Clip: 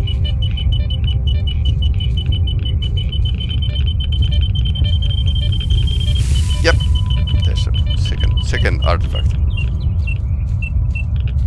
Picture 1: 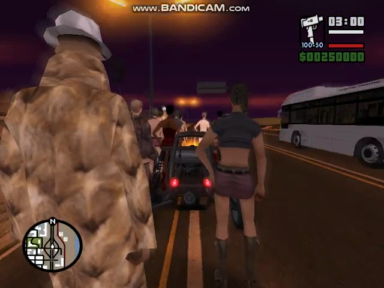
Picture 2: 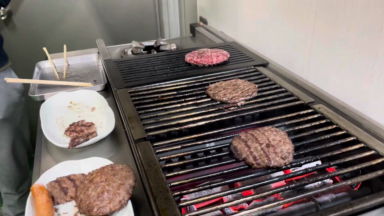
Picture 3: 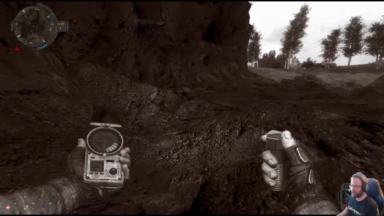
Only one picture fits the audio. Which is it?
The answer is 3